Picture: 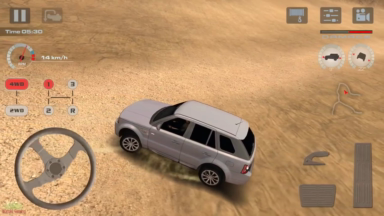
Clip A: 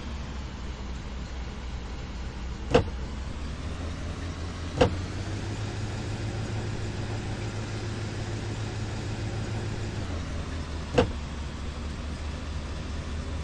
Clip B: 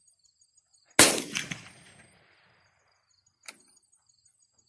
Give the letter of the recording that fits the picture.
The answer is A